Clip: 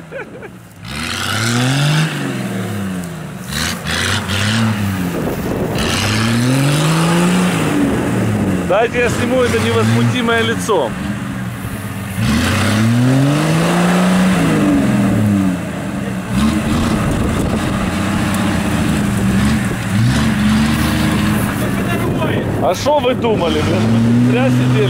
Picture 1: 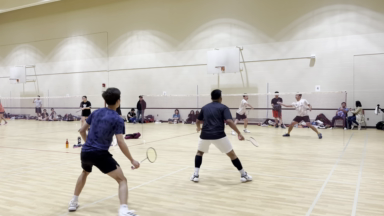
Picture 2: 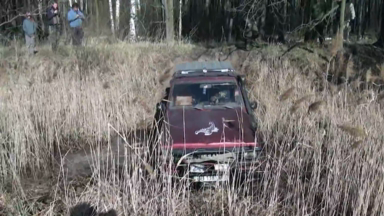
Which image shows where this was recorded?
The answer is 2